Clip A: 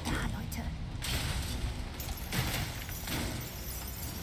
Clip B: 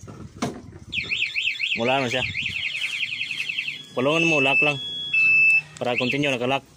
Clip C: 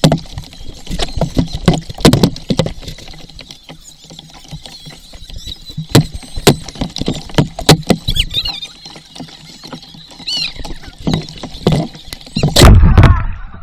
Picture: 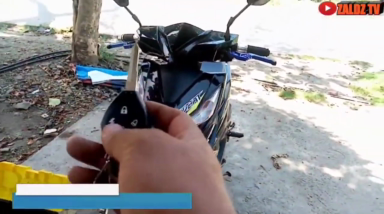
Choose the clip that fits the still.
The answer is B